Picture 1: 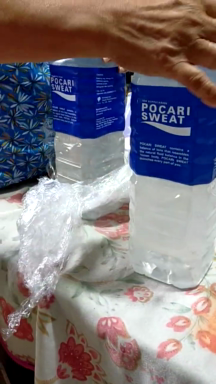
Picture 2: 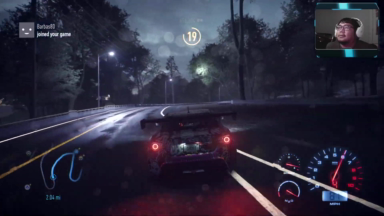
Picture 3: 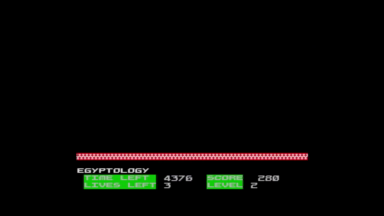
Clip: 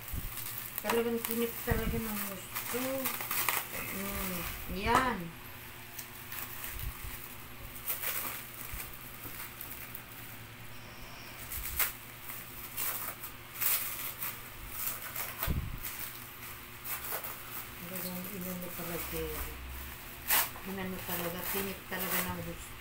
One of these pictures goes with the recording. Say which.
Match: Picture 1